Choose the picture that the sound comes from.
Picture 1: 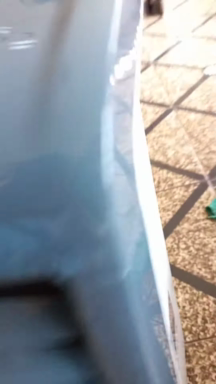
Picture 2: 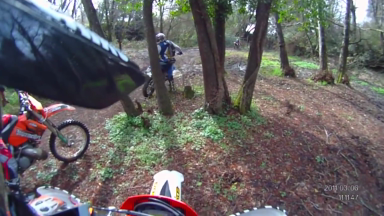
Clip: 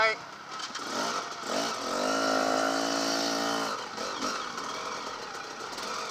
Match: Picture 2